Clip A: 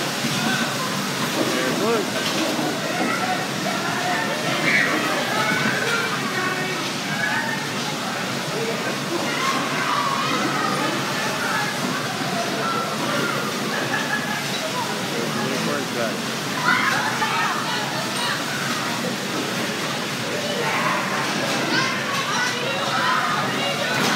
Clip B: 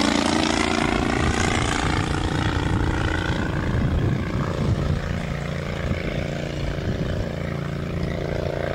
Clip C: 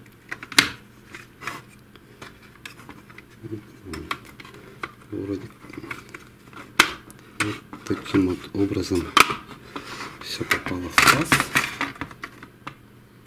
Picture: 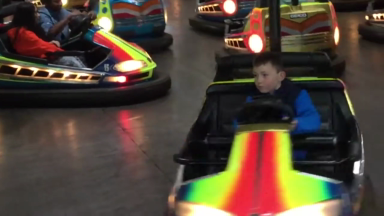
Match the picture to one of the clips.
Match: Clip A